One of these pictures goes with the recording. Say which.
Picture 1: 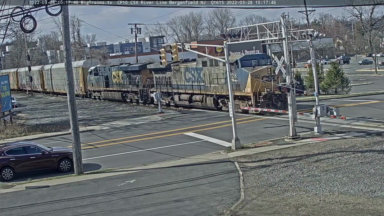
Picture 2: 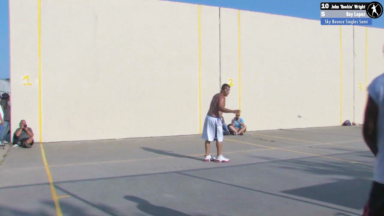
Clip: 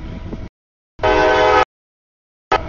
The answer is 1